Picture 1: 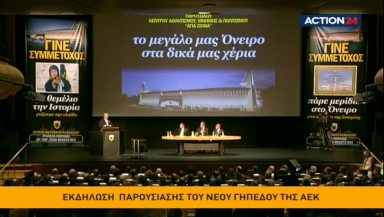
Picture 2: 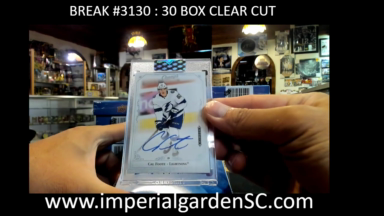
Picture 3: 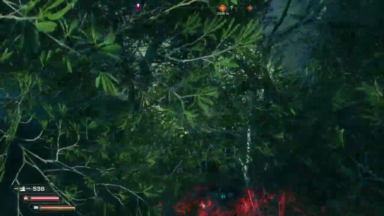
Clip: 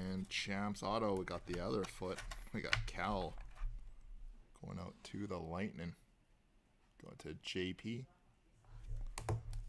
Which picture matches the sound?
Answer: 2